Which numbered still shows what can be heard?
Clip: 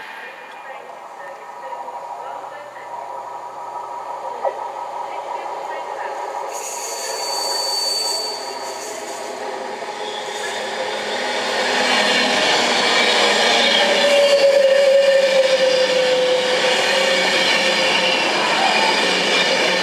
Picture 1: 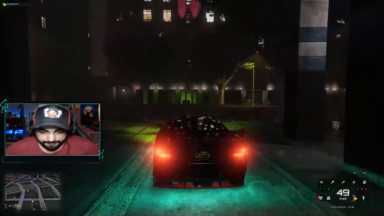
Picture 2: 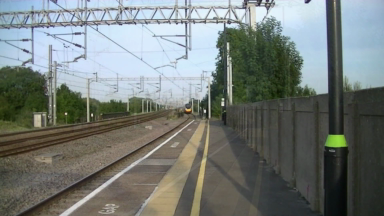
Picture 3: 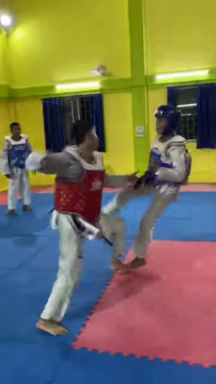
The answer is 2